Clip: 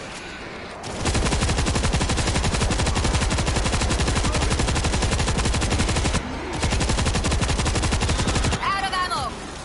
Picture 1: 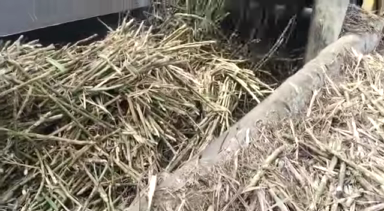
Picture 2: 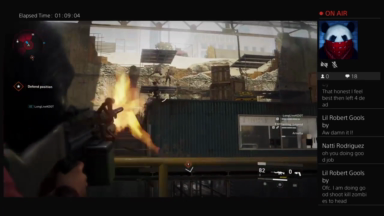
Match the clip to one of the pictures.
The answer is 2